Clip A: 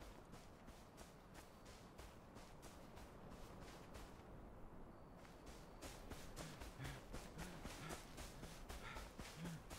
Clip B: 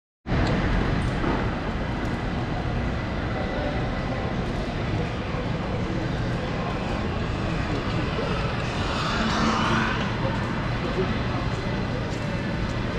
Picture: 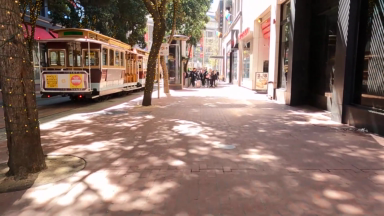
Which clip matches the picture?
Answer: B